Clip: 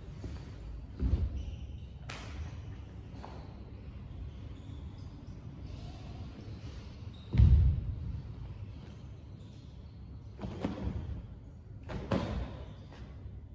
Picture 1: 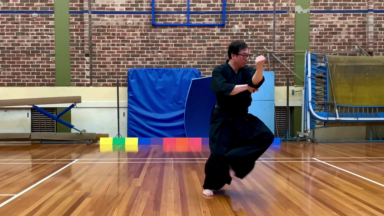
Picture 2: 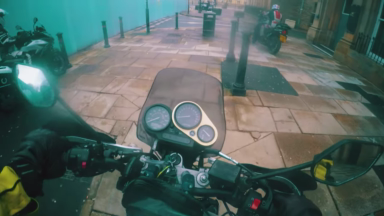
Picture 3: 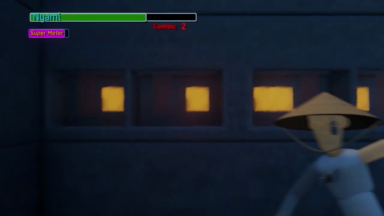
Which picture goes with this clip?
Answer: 1